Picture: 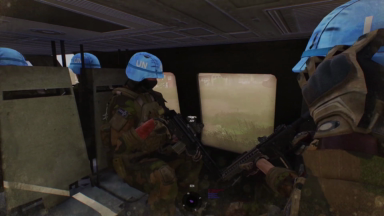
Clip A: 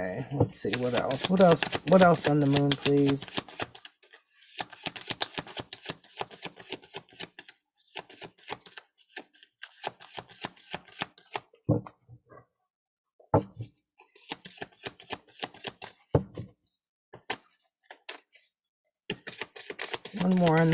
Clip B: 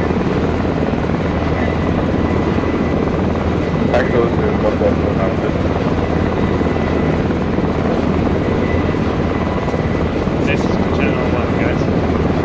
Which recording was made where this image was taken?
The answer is B